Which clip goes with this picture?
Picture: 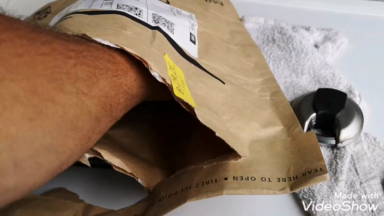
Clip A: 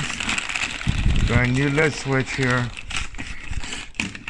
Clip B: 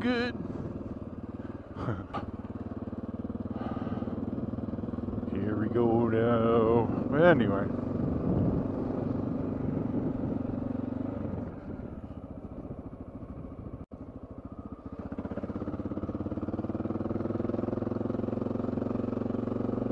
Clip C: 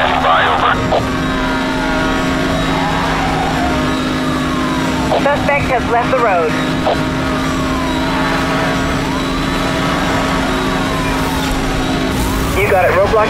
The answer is A